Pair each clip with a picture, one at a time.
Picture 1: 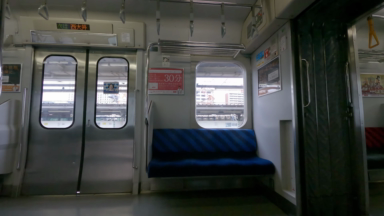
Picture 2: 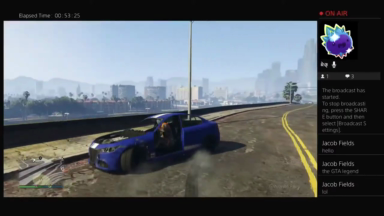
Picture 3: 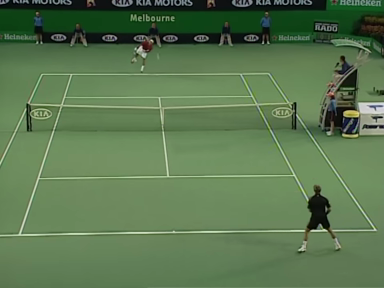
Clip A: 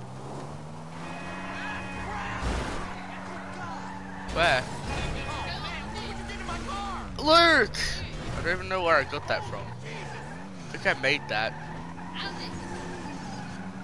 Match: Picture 2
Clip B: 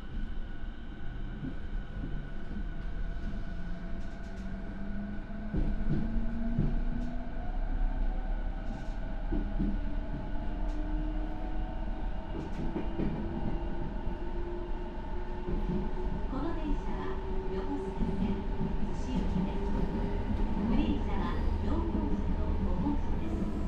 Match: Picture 1